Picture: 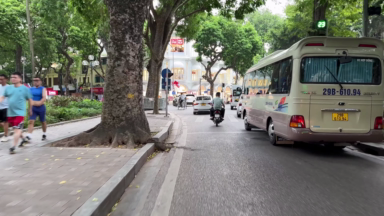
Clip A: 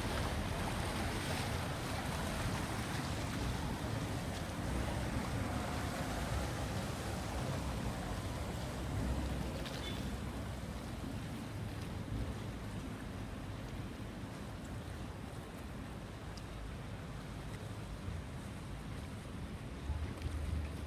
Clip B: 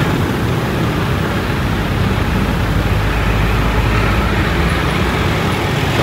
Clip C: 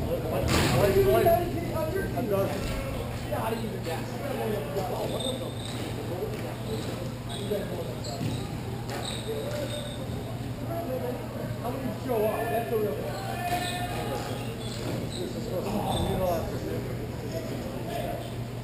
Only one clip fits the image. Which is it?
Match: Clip B